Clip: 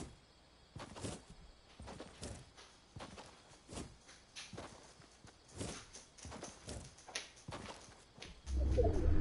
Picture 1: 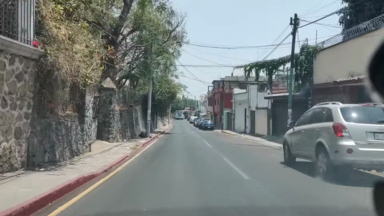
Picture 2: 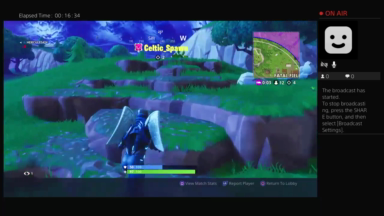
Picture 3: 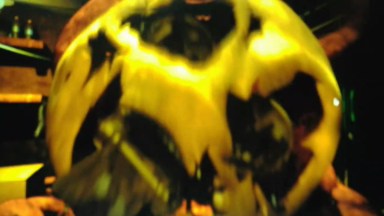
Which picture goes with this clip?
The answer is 2